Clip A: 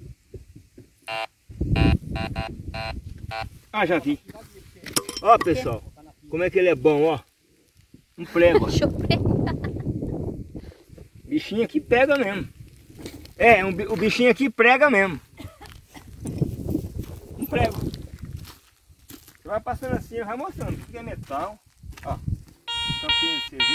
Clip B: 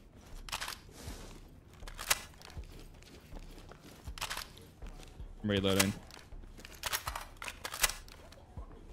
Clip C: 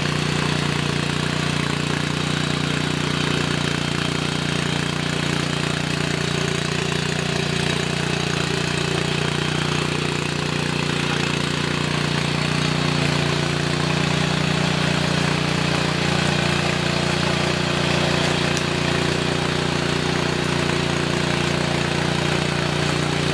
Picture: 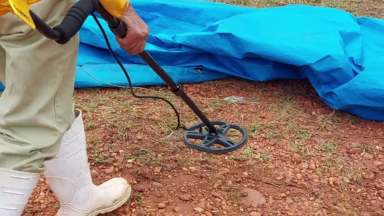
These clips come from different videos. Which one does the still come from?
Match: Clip A